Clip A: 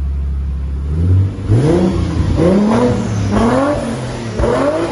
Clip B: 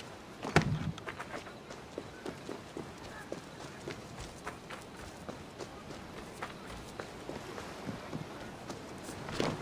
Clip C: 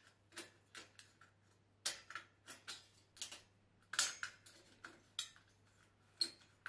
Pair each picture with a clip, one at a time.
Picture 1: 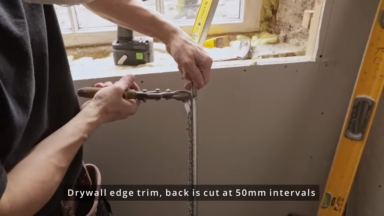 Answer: C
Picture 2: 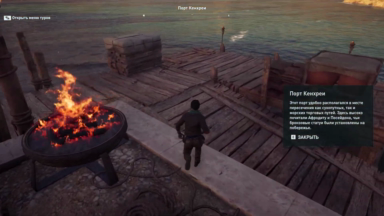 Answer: B